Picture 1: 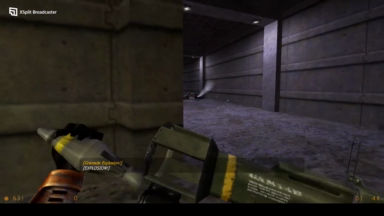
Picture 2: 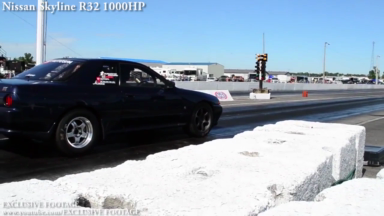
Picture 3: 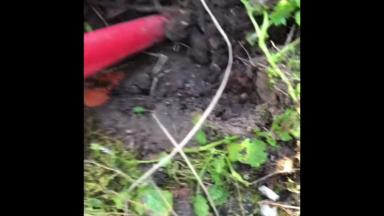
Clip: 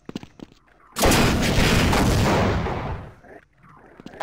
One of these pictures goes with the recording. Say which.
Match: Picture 1